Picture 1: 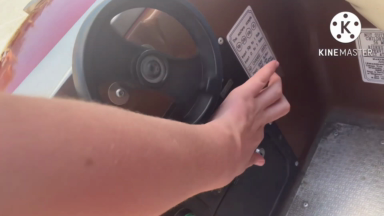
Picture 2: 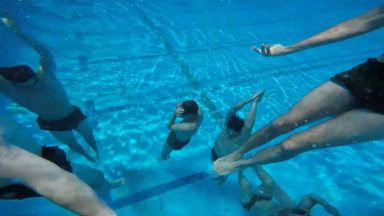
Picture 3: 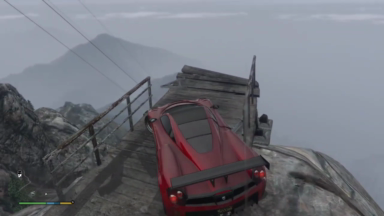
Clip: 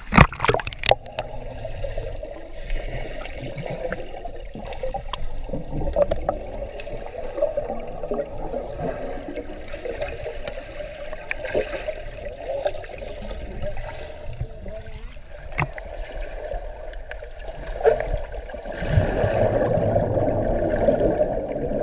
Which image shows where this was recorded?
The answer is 2